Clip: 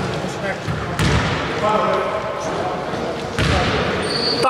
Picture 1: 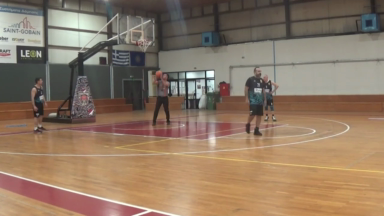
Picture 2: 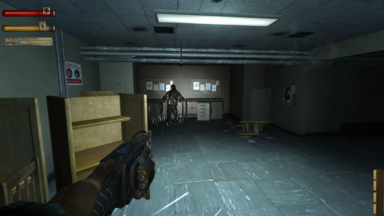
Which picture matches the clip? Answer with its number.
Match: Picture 1